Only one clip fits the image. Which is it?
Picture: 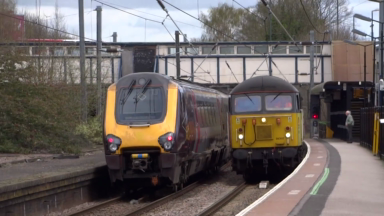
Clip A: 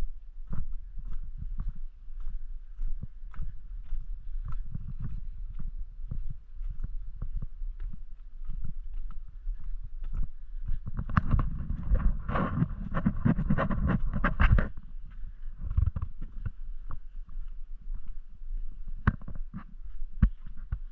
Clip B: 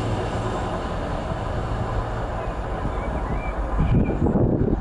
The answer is B